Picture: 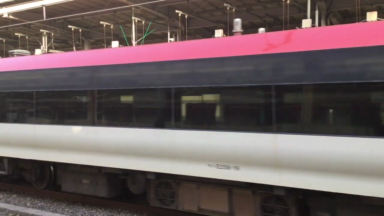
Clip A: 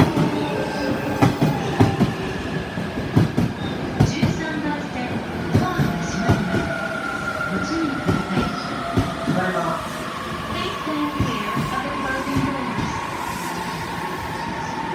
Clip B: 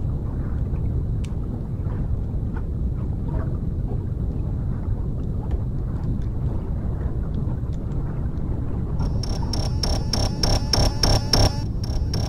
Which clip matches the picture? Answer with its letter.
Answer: A